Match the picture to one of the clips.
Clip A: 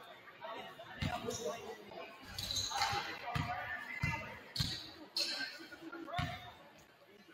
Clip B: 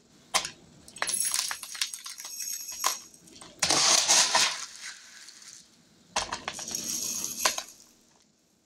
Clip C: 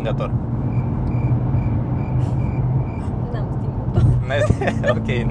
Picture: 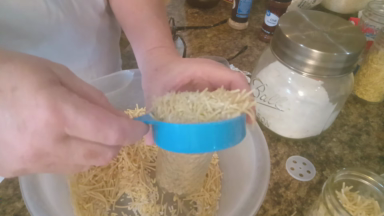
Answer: B